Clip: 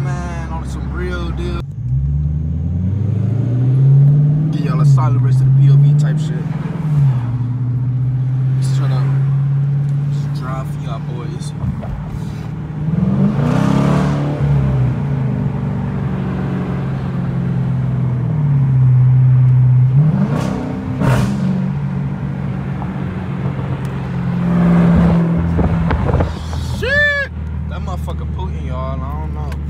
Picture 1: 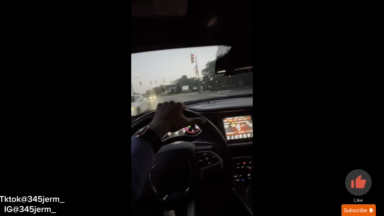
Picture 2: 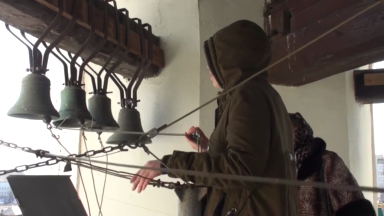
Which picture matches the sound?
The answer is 1